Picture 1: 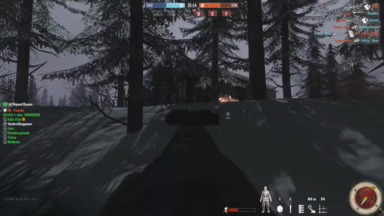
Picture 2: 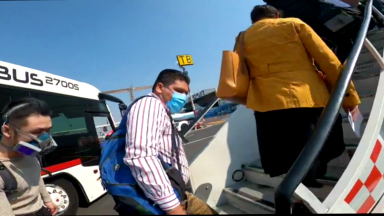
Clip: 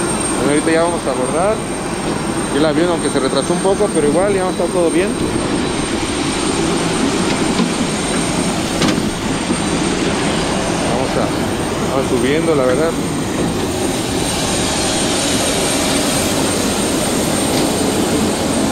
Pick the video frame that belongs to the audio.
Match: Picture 2